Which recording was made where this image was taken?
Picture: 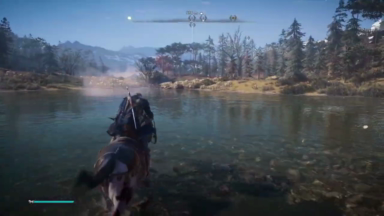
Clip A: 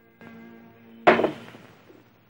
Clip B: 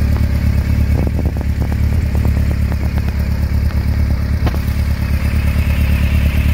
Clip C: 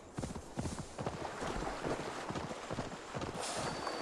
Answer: C